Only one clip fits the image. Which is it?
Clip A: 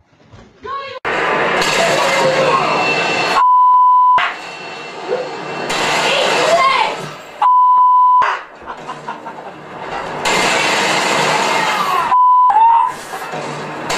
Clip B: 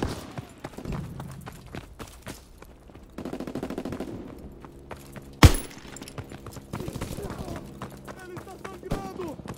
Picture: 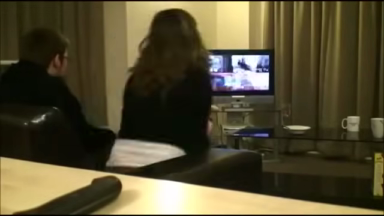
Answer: A